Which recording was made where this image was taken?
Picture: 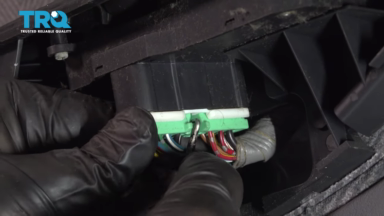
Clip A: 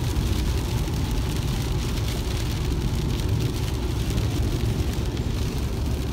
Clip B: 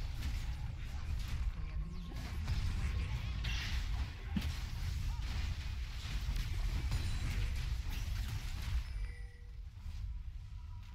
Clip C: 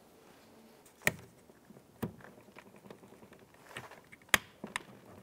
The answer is C